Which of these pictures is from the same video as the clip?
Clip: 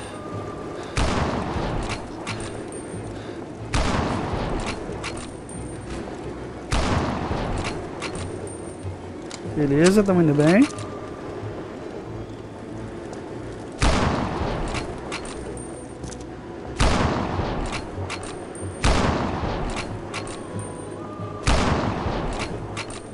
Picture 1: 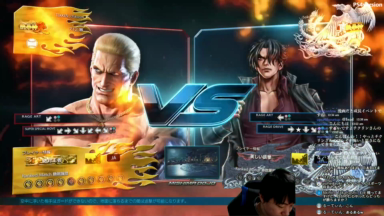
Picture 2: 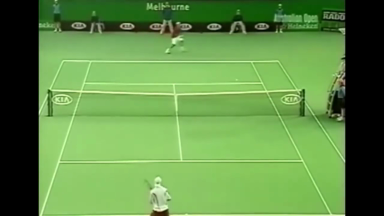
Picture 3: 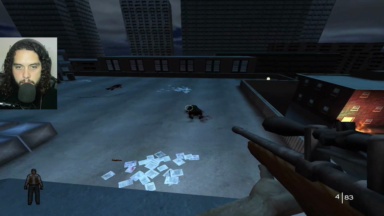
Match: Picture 3